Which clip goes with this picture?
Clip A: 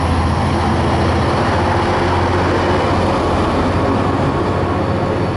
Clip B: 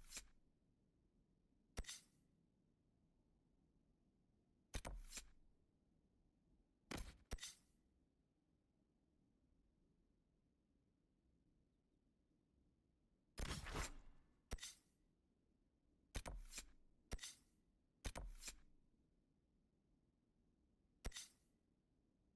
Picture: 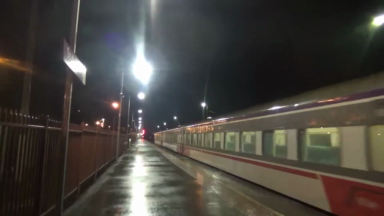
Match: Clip A